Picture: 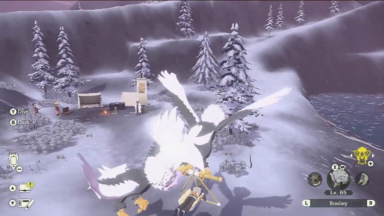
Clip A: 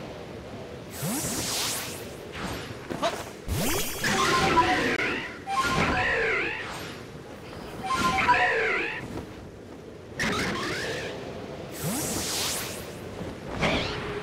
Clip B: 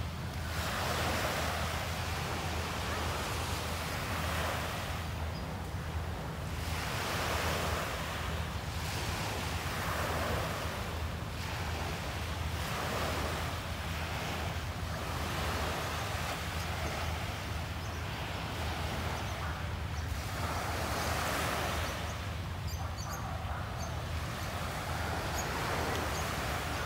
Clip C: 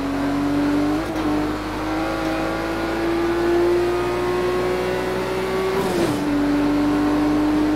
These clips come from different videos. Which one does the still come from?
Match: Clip A